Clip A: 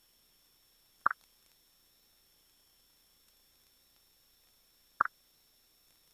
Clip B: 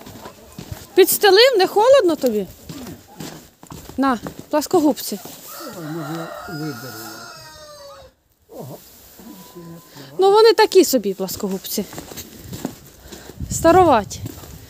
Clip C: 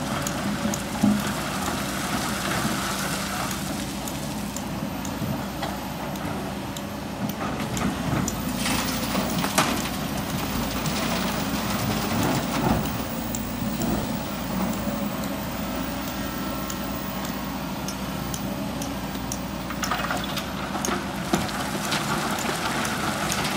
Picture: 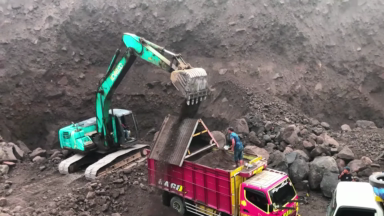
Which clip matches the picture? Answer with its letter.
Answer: C